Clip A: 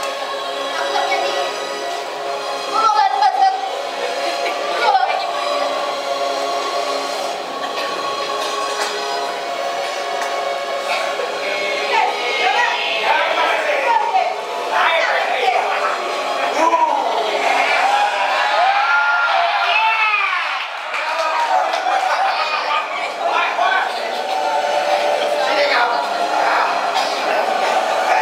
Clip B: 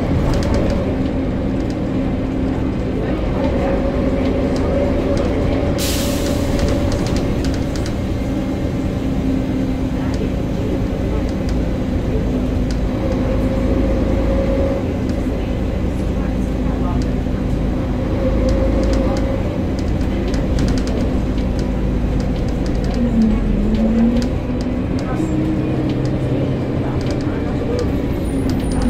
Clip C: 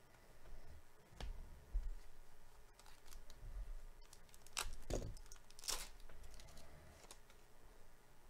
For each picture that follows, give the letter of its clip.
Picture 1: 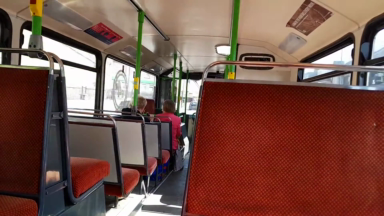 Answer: B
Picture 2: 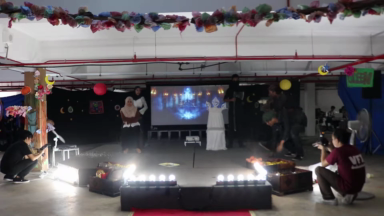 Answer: A